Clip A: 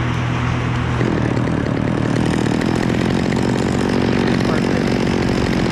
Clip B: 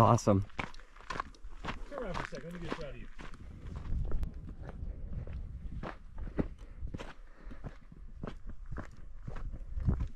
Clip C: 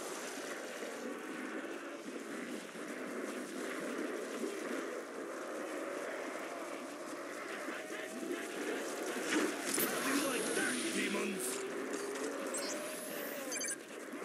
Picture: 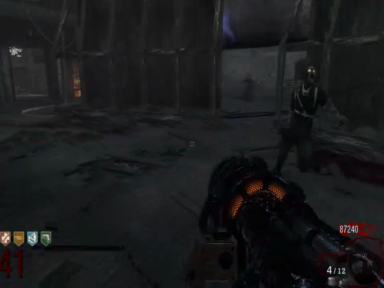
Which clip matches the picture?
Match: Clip C